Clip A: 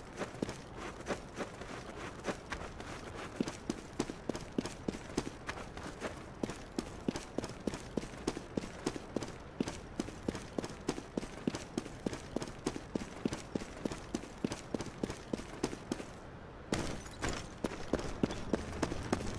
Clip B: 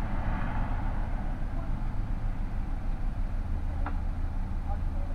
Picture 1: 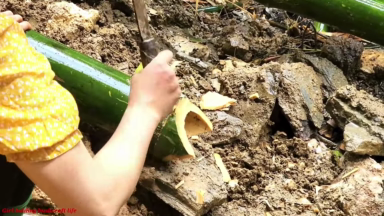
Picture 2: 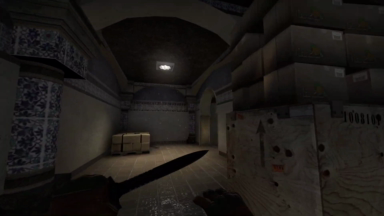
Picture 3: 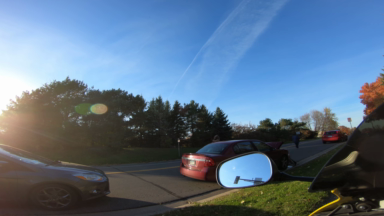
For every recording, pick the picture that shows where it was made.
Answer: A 2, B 3